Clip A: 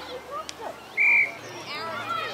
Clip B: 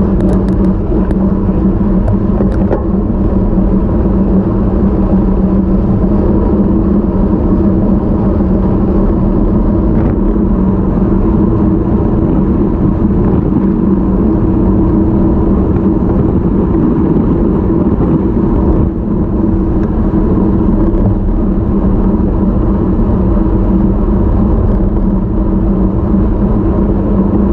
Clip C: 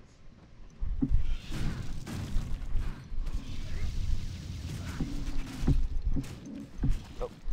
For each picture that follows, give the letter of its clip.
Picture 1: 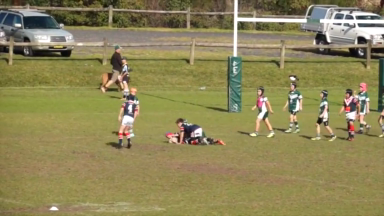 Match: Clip A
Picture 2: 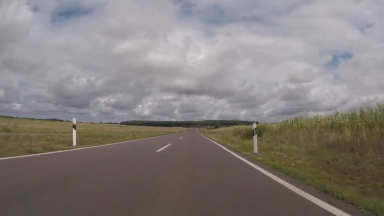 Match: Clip B